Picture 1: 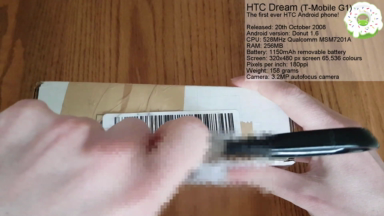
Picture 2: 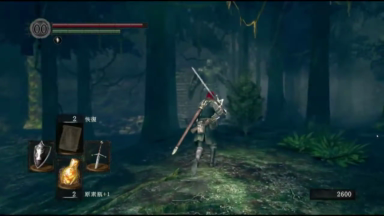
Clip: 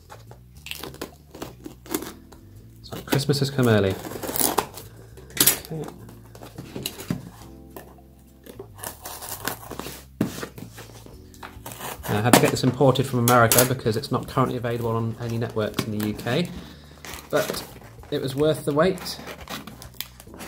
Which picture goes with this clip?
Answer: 1